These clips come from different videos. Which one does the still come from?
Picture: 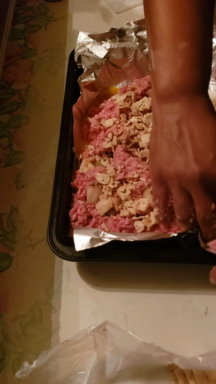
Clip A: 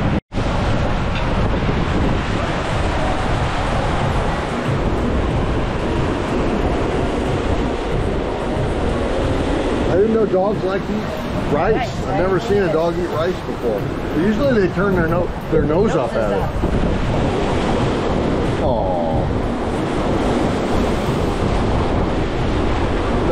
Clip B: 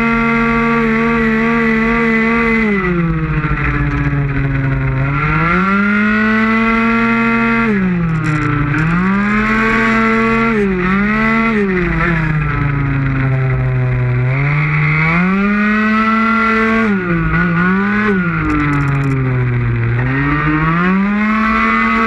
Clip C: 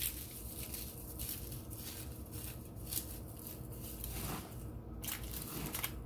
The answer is C